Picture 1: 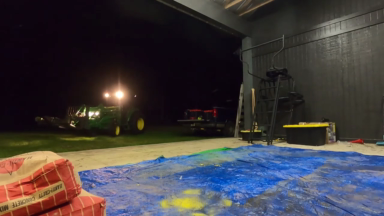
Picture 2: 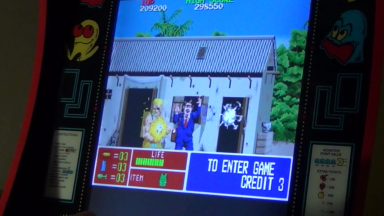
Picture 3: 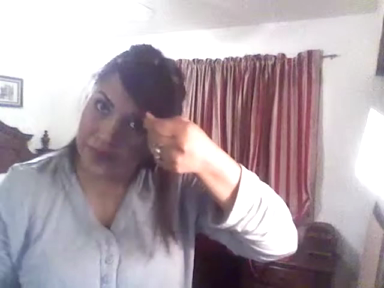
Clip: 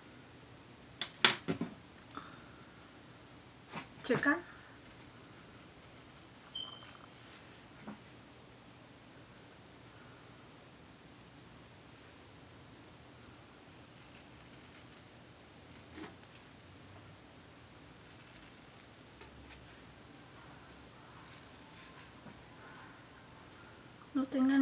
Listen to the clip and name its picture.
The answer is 3